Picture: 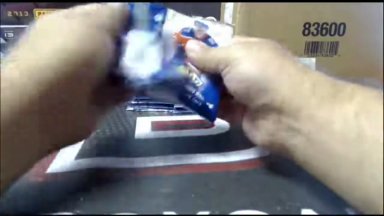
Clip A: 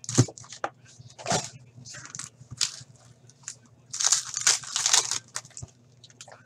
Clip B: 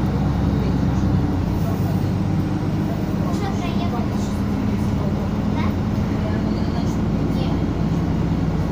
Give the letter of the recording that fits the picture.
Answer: A